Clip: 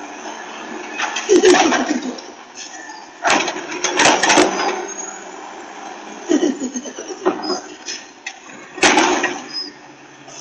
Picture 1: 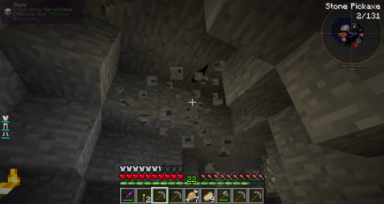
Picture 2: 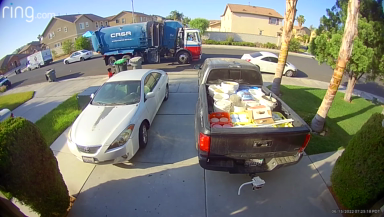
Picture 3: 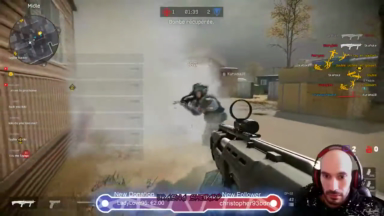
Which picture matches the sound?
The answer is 2